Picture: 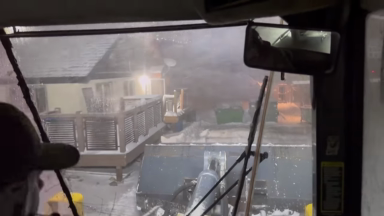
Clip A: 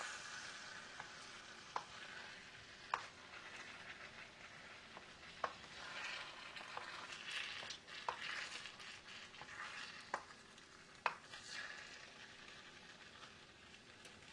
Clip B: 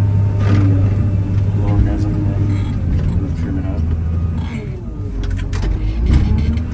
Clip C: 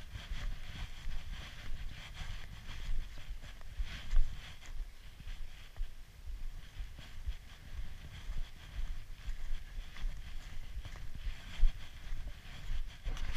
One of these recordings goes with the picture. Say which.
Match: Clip B